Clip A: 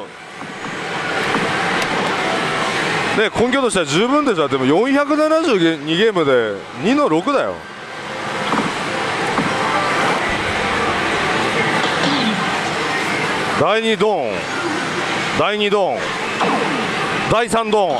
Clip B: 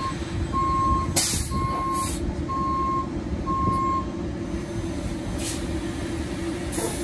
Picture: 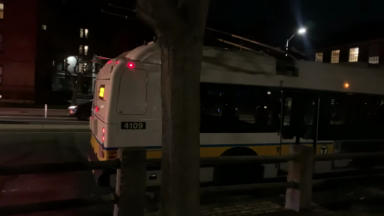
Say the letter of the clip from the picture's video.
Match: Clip B